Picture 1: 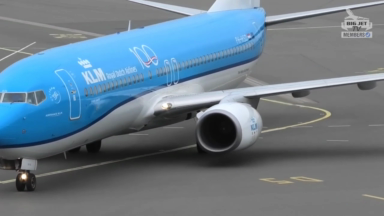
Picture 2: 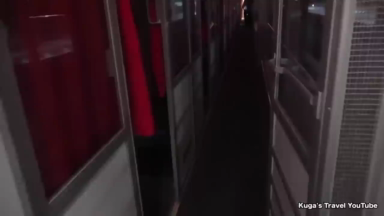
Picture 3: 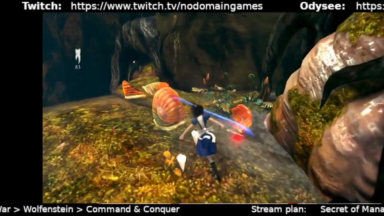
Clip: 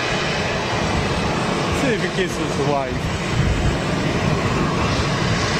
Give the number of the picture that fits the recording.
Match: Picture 1